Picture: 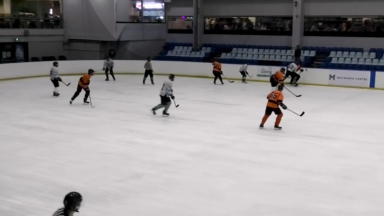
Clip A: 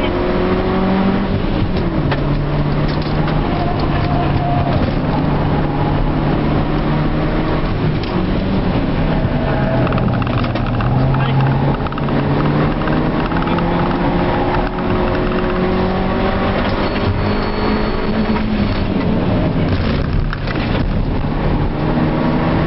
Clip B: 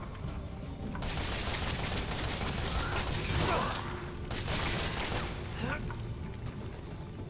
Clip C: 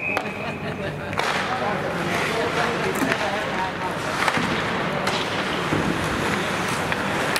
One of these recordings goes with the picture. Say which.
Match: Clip C